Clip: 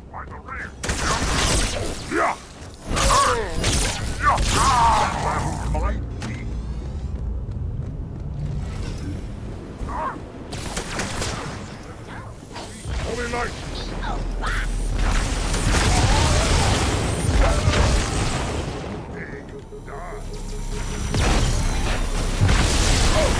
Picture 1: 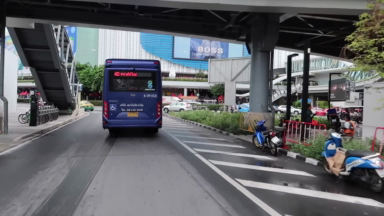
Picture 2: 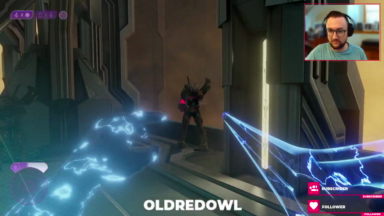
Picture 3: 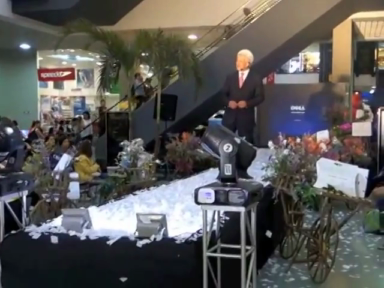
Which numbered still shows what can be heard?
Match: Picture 2